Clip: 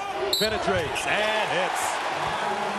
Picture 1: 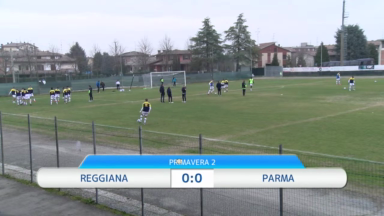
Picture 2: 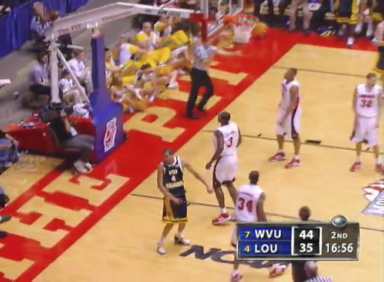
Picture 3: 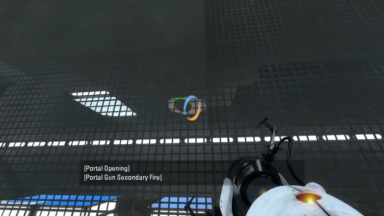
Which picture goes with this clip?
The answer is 2